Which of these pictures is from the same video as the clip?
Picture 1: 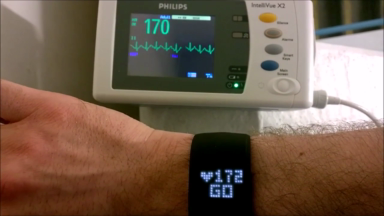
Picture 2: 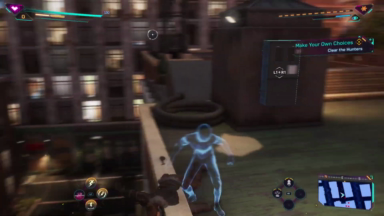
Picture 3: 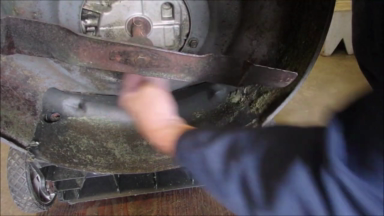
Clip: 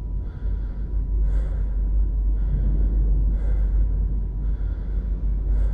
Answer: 1